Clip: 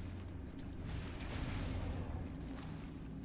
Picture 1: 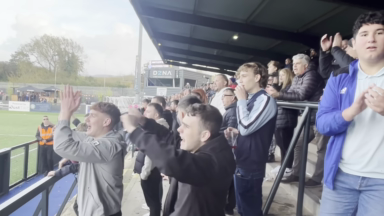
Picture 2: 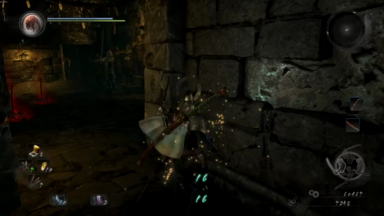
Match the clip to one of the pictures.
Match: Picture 2